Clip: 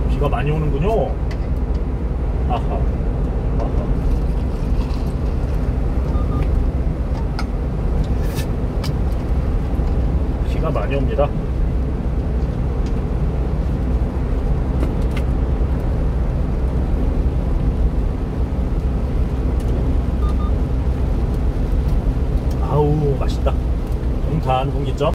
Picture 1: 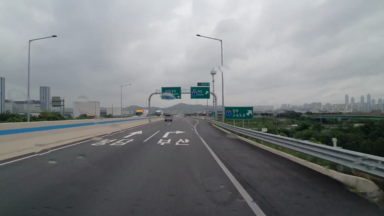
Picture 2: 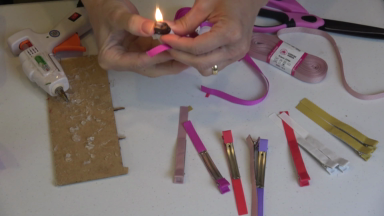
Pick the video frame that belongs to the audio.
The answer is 1